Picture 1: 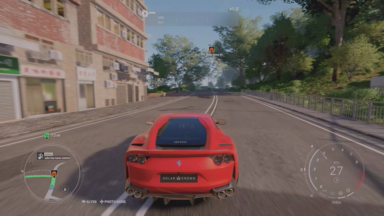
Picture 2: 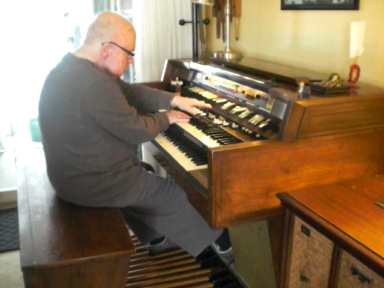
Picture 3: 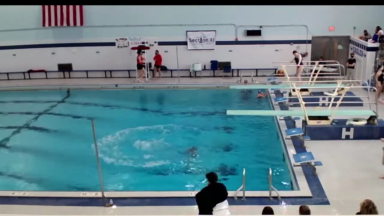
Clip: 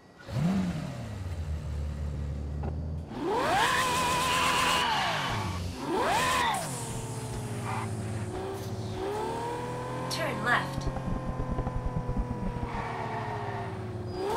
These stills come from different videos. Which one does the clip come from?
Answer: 1